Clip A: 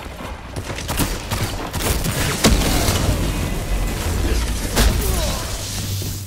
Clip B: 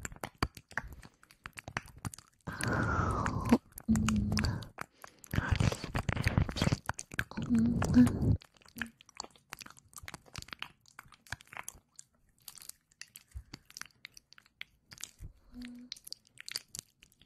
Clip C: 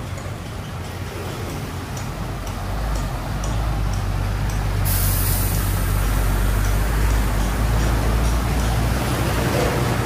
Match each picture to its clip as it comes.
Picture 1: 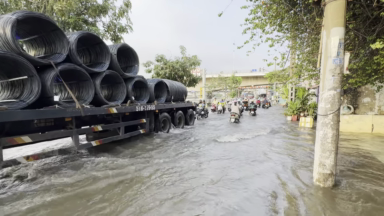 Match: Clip C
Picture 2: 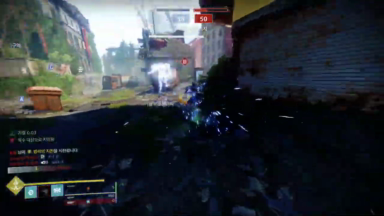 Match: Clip A